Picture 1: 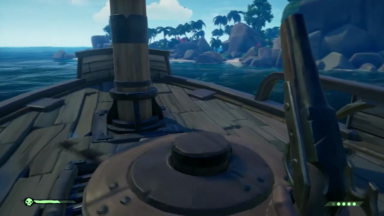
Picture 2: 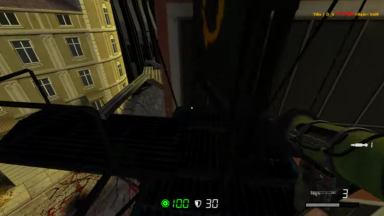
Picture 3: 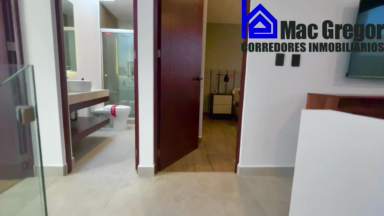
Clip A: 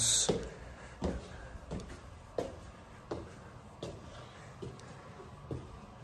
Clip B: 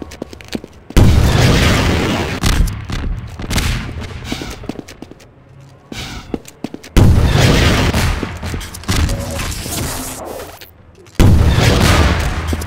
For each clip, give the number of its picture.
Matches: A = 3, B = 2